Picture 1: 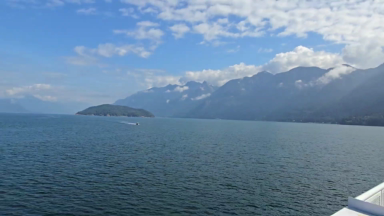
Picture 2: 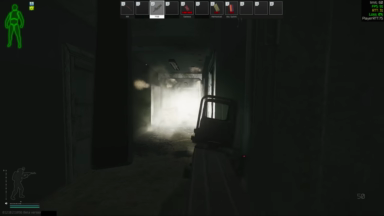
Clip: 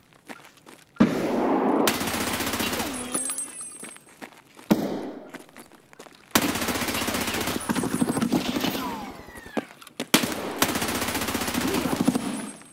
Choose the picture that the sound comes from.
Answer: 2